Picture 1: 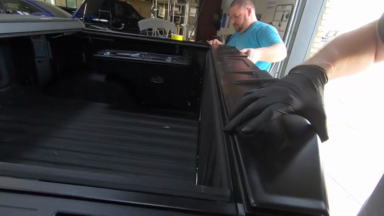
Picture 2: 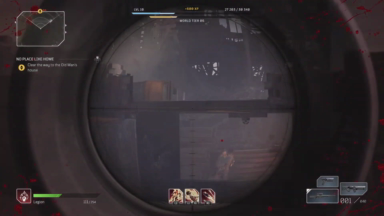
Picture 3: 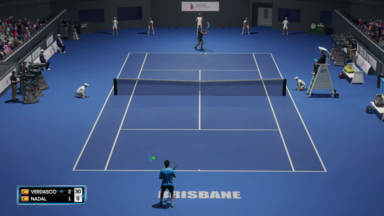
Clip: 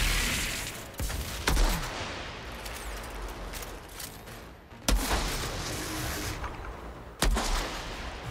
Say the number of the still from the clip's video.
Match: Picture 2